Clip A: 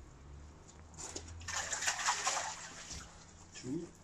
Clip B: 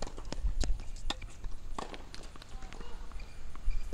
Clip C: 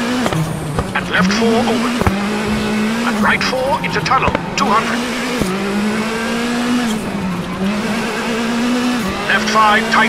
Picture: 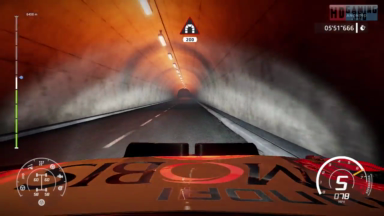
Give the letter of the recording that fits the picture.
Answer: C